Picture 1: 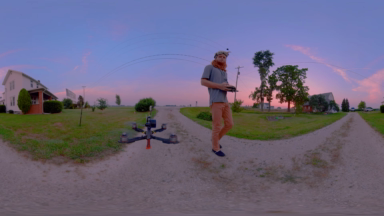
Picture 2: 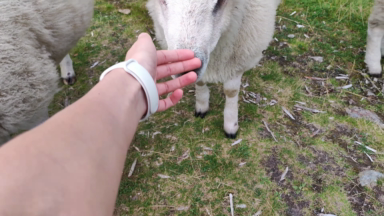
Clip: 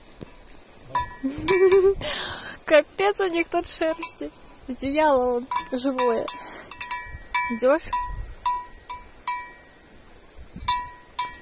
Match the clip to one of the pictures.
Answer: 2